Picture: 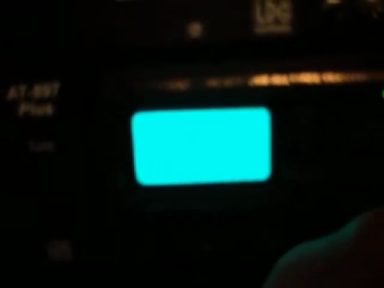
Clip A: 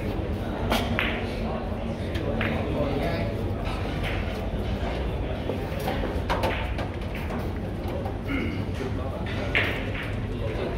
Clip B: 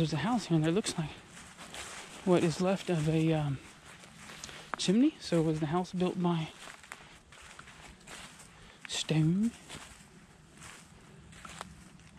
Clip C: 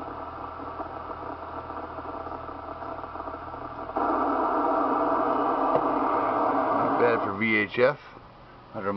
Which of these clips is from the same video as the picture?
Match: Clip C